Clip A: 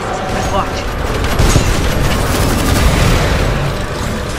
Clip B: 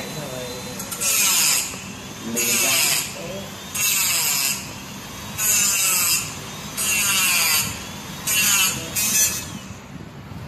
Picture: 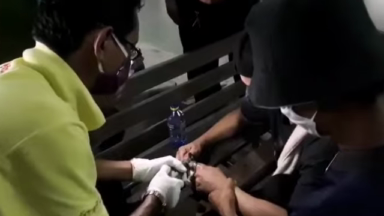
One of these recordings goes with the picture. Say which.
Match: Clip B